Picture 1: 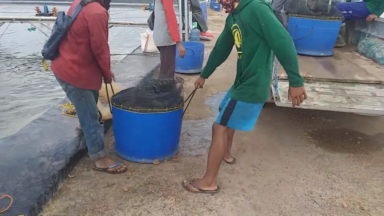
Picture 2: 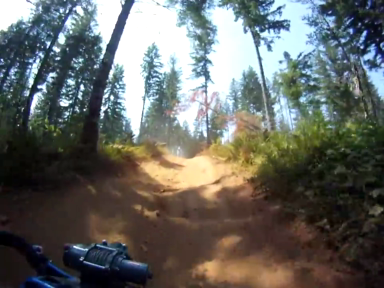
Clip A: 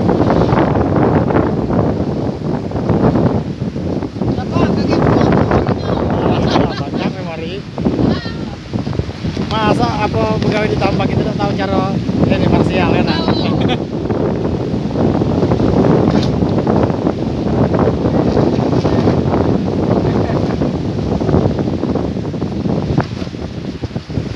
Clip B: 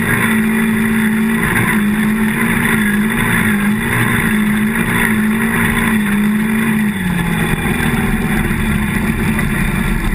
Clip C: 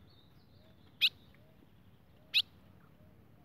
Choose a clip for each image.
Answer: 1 A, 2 B